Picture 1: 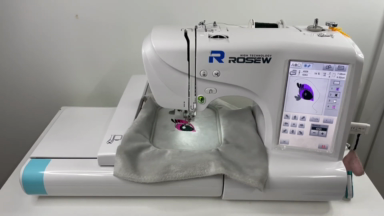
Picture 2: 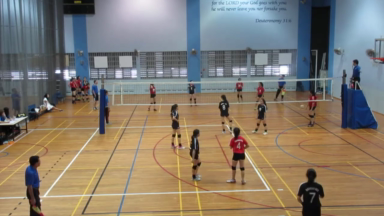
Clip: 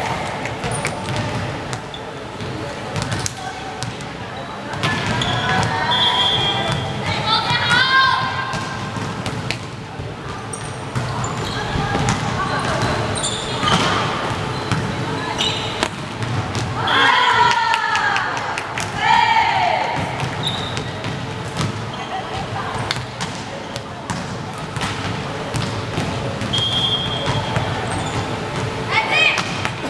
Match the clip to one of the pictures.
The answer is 2